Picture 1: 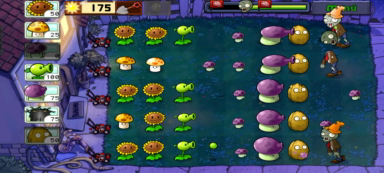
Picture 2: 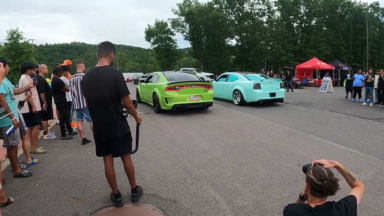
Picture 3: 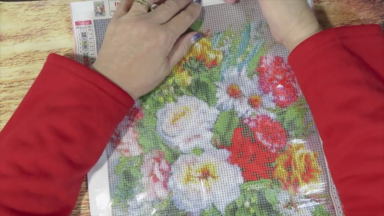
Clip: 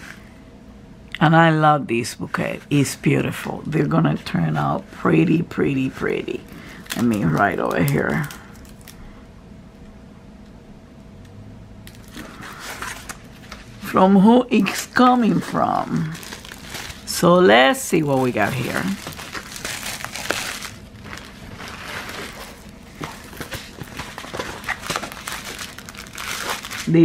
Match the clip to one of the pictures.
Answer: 3